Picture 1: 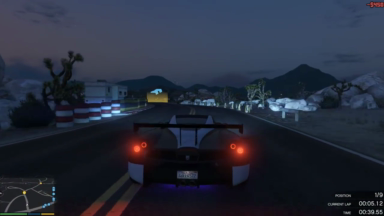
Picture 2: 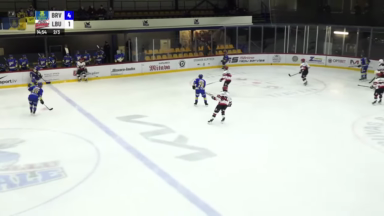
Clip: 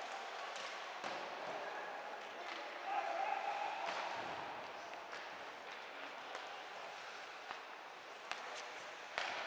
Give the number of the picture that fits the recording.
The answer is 2